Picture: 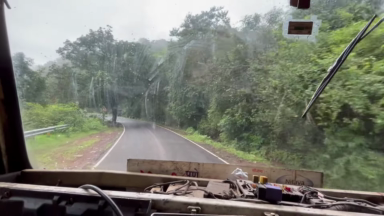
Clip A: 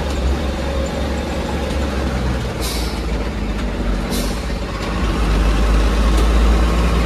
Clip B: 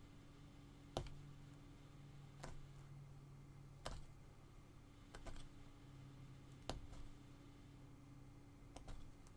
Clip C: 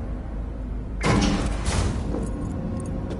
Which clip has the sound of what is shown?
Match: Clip A